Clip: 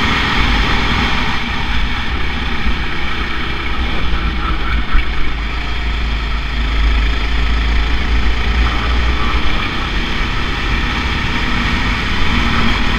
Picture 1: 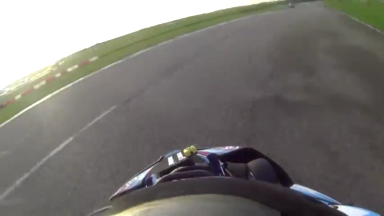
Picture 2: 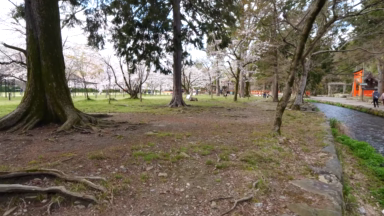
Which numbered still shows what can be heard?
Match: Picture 1